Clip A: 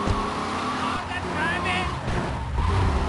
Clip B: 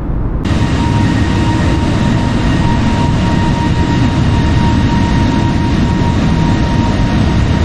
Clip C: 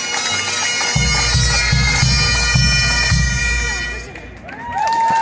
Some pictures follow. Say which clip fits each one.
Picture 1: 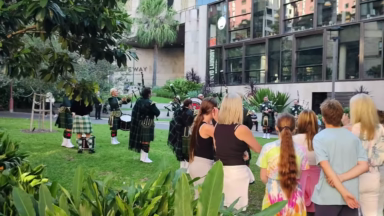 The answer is C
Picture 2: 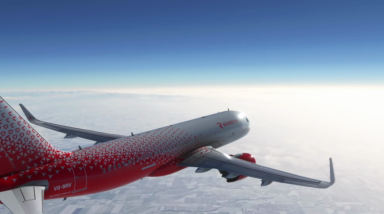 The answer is B